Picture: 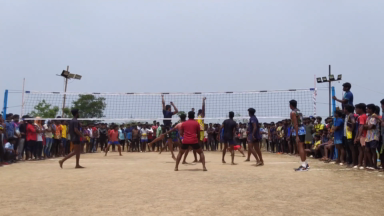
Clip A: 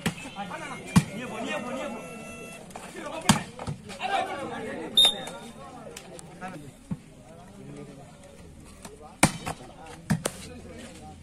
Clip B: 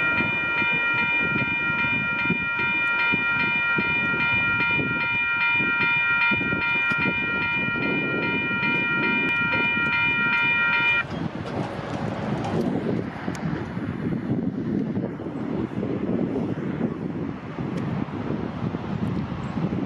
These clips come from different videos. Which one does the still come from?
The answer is A